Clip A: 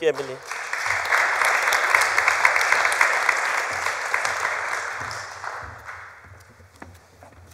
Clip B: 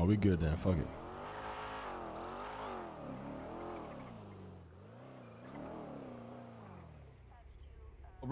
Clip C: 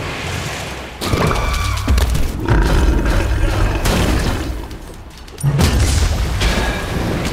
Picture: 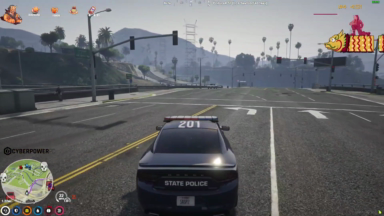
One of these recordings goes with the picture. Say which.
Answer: B